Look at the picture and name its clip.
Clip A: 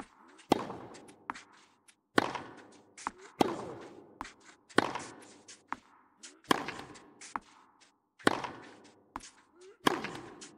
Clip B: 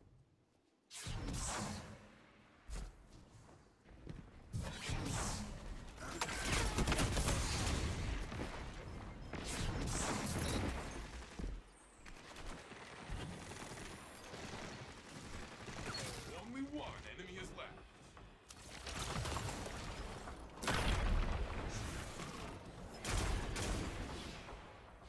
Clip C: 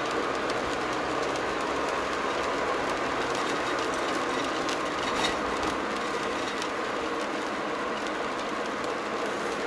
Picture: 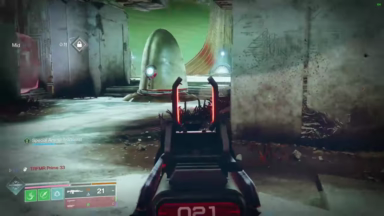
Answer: B